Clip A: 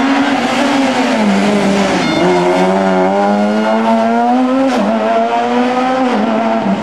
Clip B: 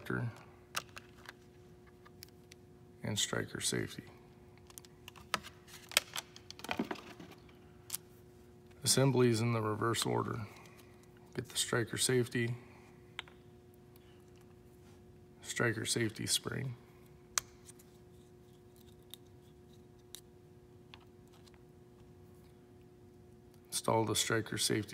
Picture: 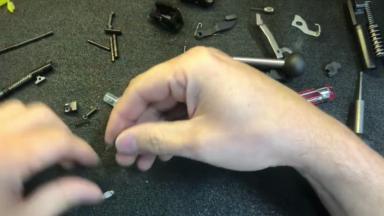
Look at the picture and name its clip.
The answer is B